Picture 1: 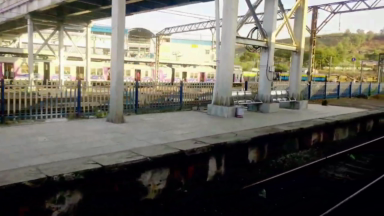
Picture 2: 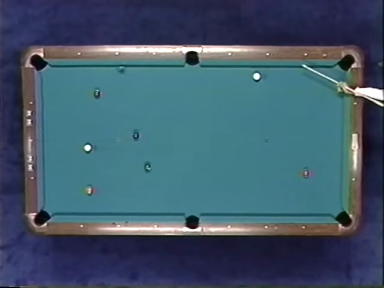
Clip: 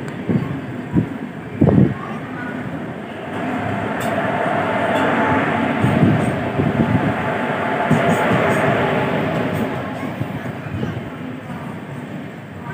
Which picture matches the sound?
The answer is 1